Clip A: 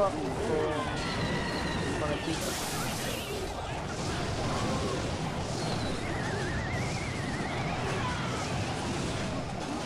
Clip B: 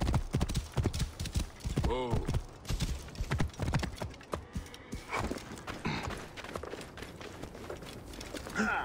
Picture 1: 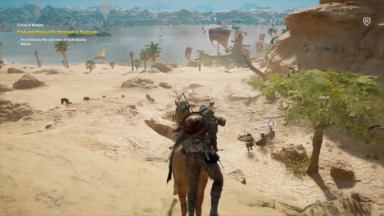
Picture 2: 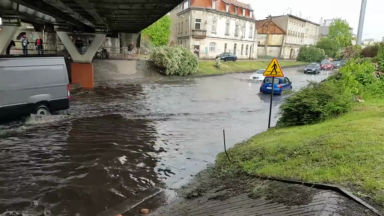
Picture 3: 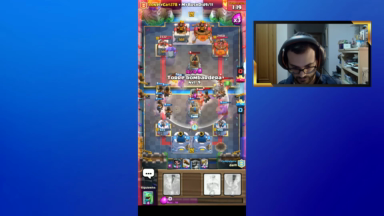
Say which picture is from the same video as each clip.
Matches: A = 3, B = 1